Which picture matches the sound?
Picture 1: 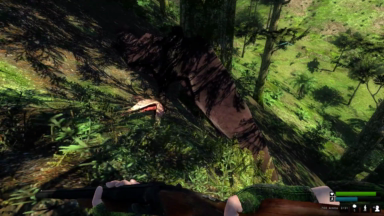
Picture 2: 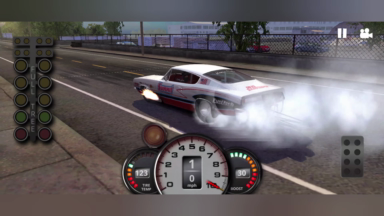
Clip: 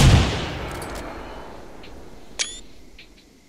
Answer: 1